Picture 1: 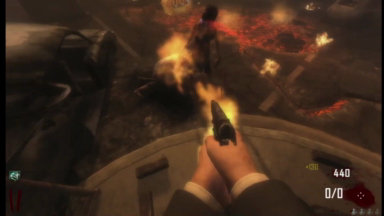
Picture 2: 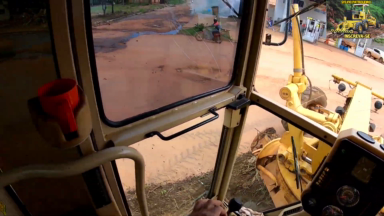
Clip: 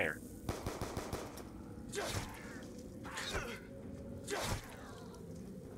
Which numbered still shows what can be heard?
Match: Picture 1